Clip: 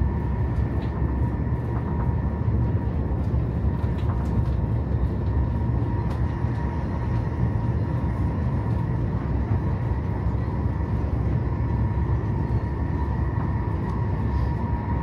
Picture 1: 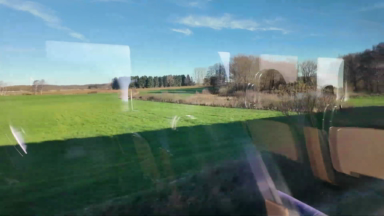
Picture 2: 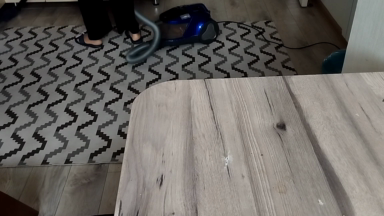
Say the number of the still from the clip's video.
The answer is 1